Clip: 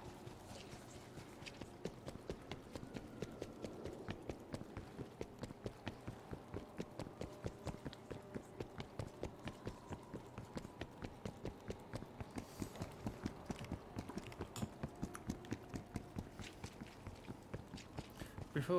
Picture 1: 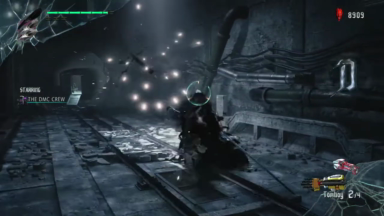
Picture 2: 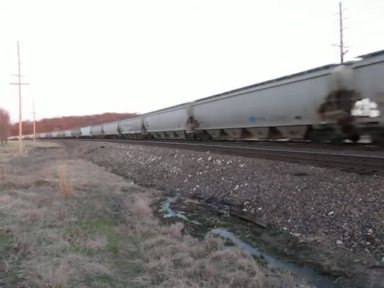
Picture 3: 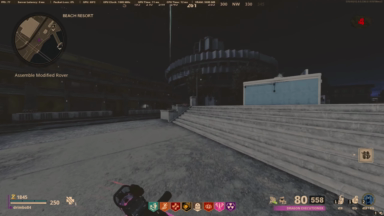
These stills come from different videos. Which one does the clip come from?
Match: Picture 3